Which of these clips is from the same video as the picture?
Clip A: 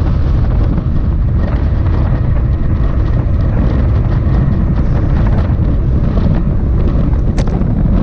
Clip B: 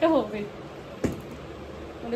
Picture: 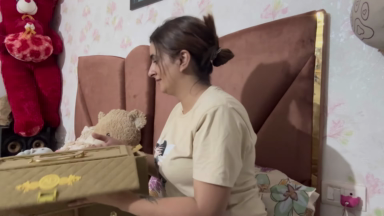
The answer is B